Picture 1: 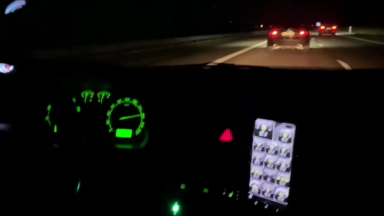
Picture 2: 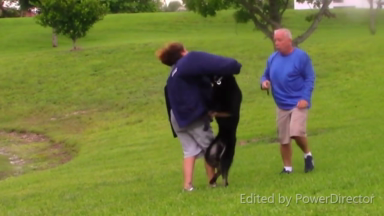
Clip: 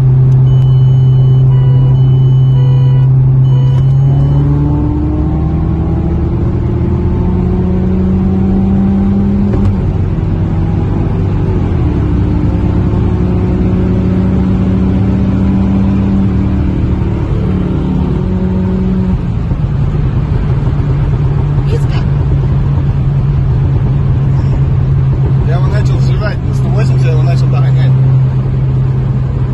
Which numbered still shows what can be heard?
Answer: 1